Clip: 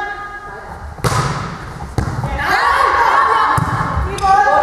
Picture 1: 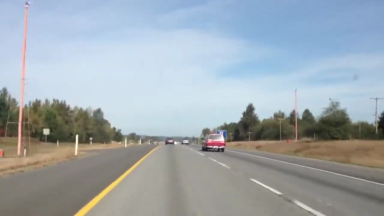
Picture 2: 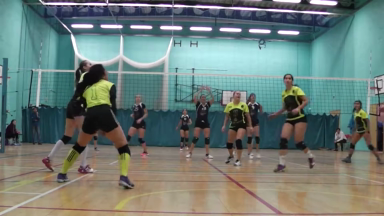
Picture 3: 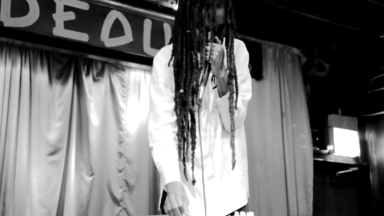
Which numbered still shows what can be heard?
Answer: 2